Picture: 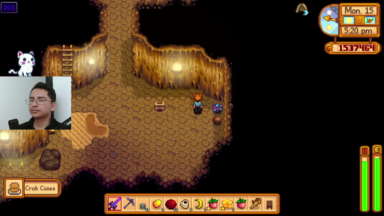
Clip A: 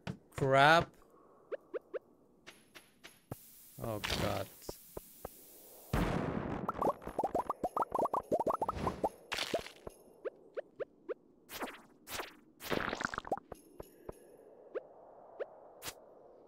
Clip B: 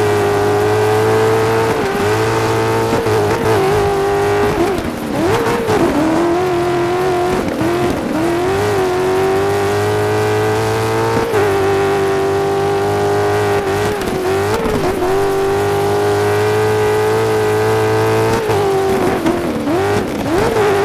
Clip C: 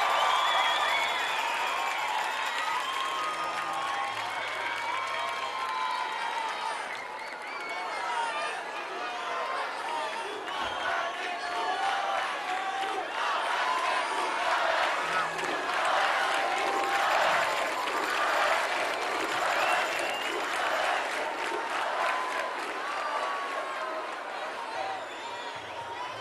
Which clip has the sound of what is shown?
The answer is A